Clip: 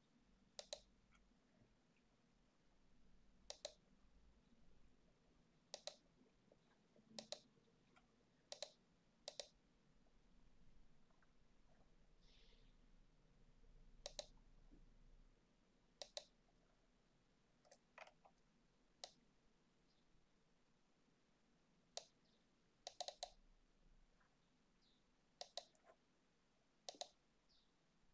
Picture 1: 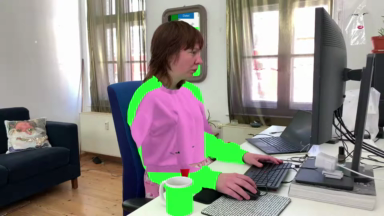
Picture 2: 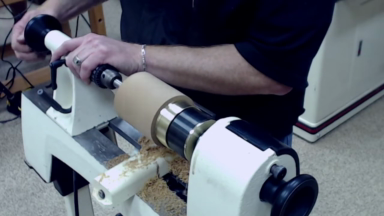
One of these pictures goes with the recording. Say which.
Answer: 1